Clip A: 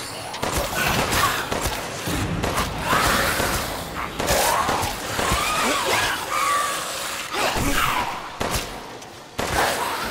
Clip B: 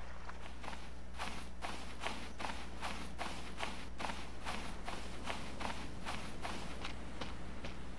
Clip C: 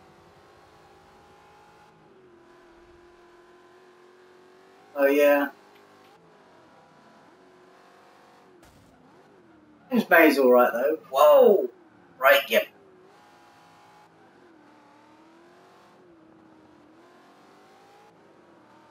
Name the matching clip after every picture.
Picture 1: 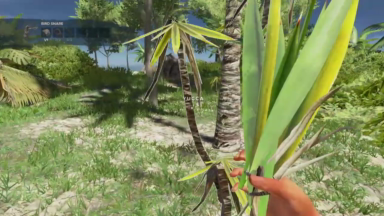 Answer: B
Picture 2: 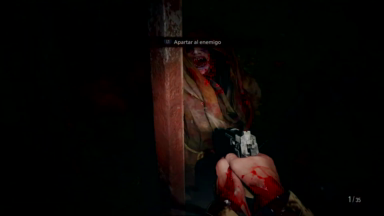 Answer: A